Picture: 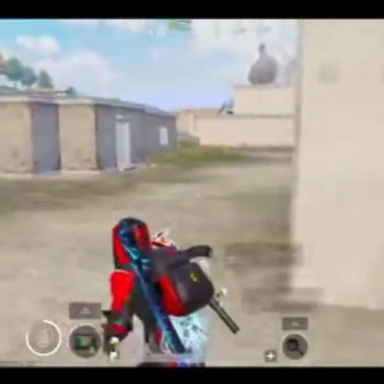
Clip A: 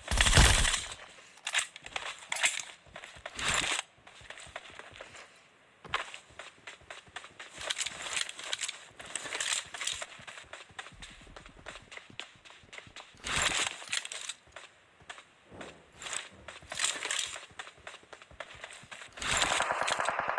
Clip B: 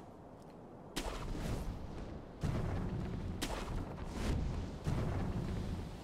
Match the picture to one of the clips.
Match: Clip A